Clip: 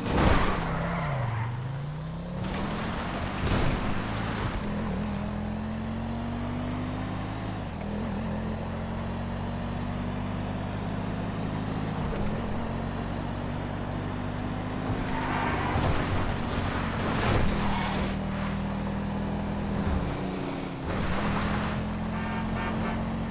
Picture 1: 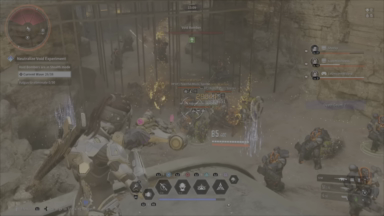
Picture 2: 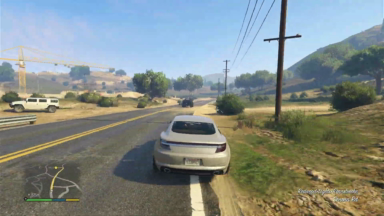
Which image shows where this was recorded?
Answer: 2